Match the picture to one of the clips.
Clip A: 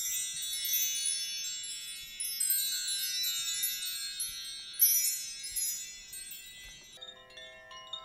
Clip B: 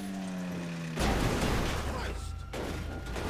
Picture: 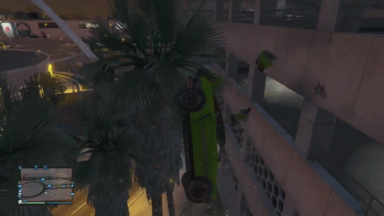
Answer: B